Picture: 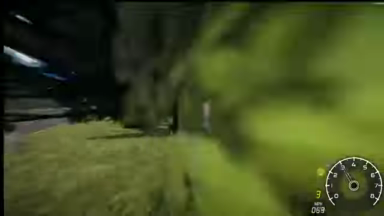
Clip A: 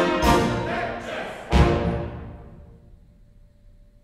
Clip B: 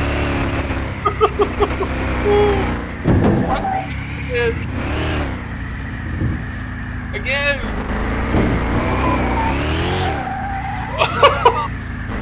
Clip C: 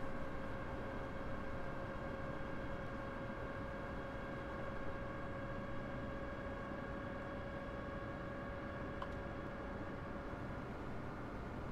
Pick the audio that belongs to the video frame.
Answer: B